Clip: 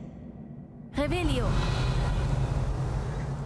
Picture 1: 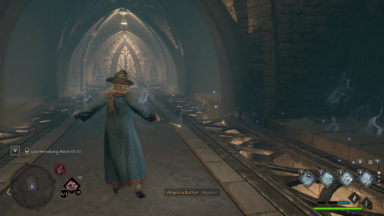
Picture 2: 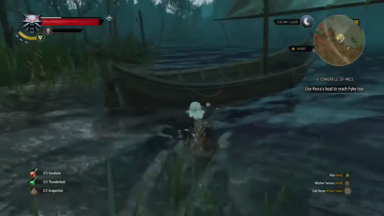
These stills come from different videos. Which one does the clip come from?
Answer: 1